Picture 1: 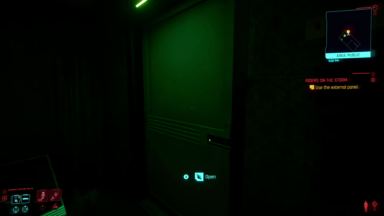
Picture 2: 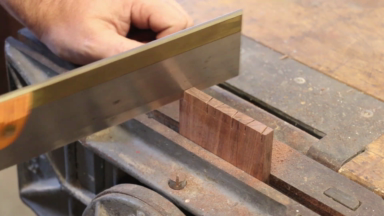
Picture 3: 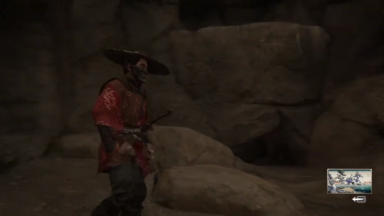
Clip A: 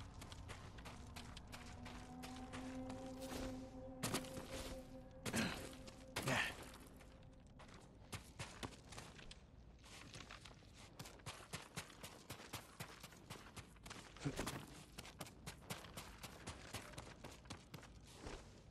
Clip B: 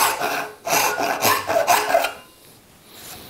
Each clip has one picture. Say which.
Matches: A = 3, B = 2